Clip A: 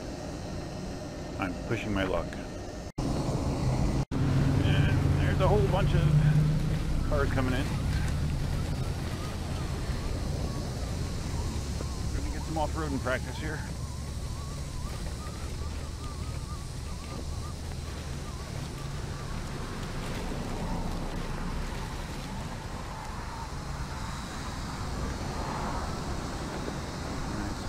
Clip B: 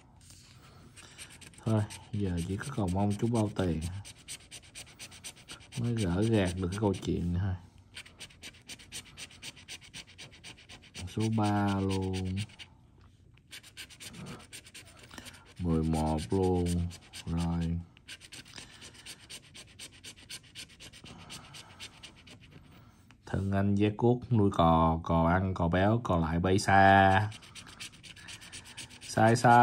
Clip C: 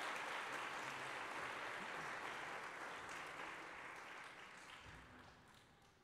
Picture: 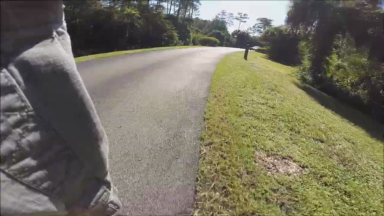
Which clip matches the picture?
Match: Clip A